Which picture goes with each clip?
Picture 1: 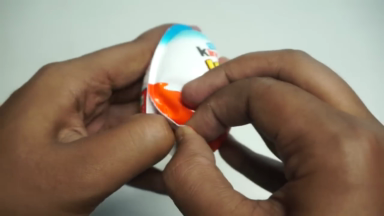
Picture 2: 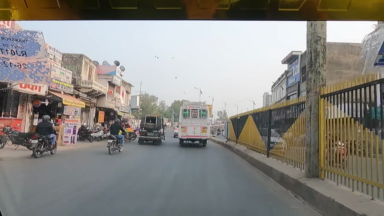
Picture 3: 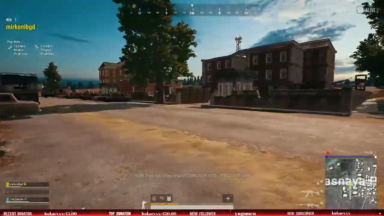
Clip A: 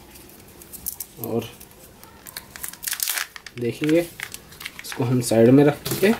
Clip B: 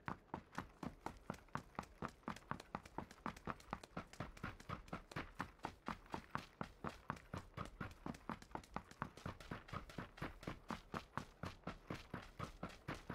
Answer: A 1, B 3